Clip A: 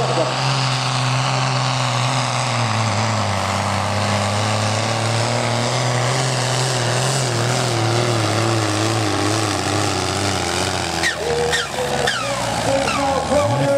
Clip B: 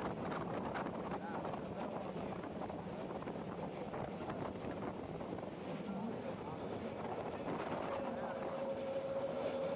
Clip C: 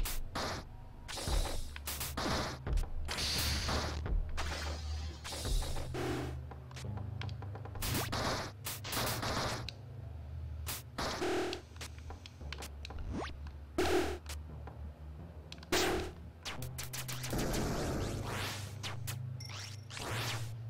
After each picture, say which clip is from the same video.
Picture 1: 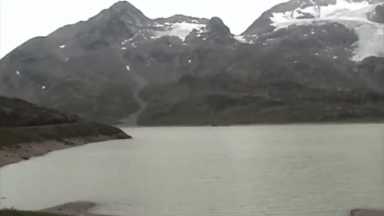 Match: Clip B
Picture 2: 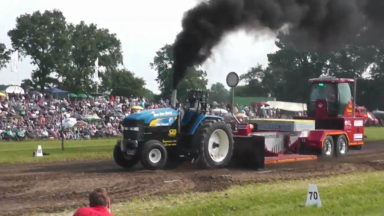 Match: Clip A